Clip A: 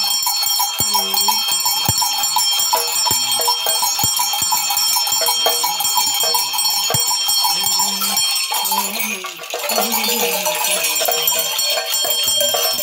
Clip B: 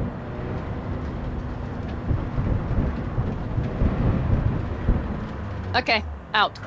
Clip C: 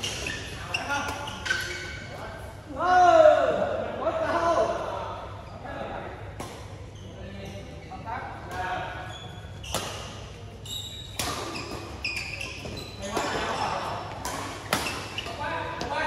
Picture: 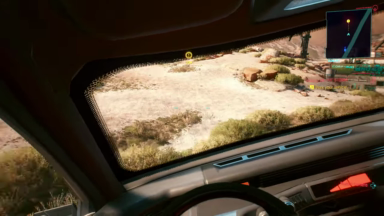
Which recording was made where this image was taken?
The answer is B